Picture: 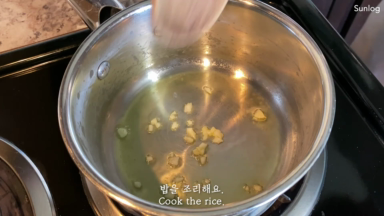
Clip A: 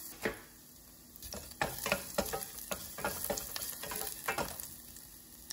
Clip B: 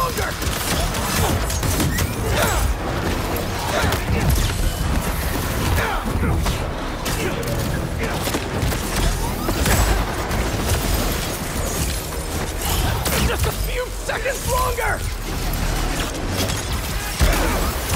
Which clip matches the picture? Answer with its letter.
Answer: A